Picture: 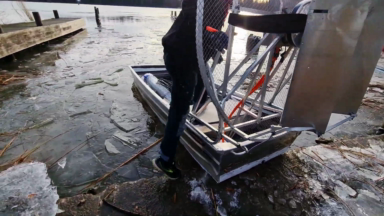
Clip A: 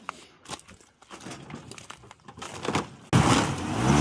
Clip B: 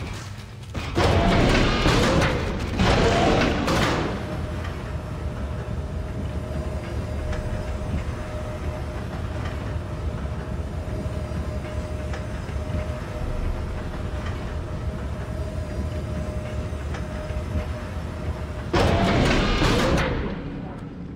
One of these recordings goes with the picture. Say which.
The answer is A